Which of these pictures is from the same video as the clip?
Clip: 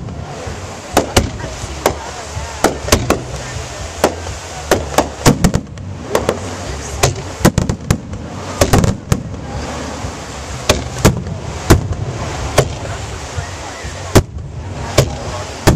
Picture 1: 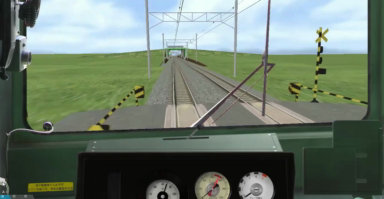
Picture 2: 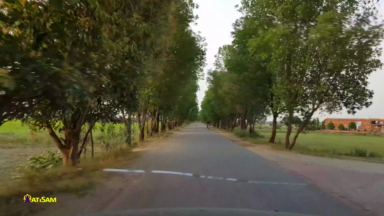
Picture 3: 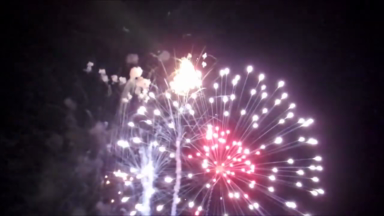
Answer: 3